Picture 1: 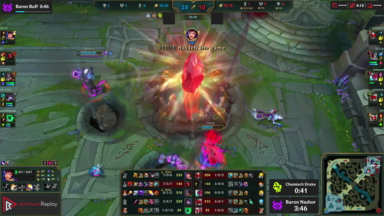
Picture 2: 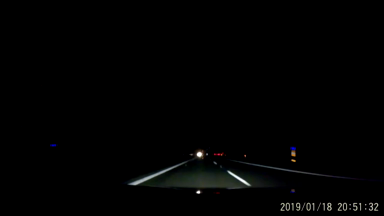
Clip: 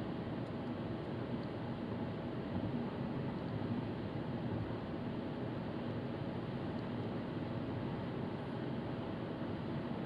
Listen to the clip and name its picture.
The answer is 2